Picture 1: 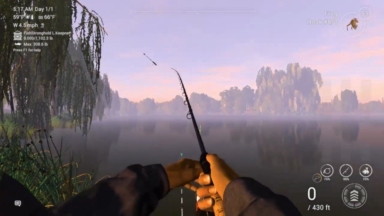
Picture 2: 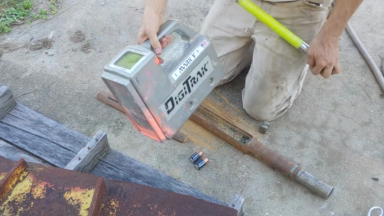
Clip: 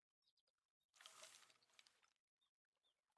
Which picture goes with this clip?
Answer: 1